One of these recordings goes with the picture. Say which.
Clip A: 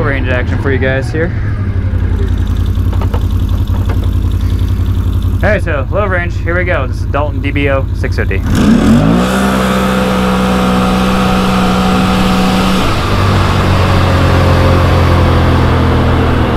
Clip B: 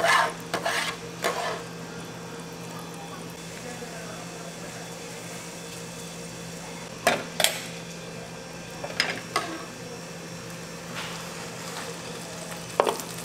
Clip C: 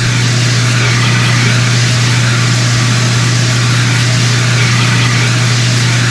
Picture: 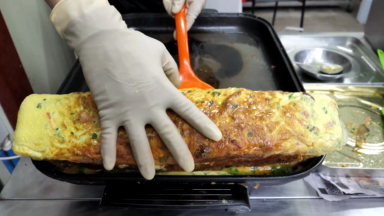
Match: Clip B